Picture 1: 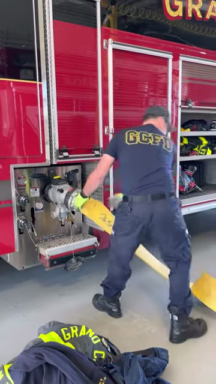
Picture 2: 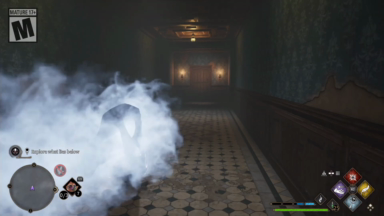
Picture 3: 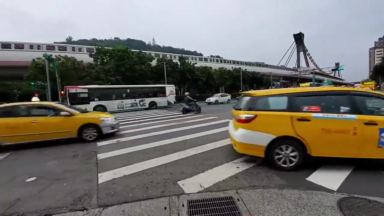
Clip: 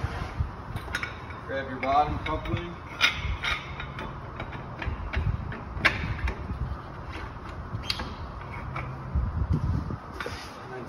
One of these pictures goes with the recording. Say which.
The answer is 1